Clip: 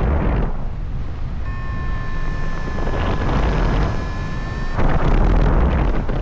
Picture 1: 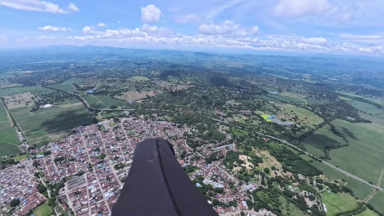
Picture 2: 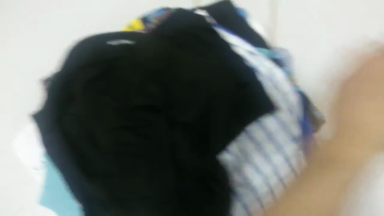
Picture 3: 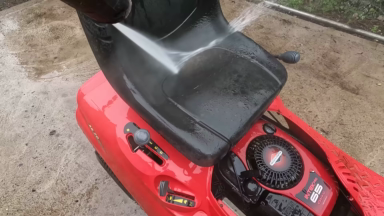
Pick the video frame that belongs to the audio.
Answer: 1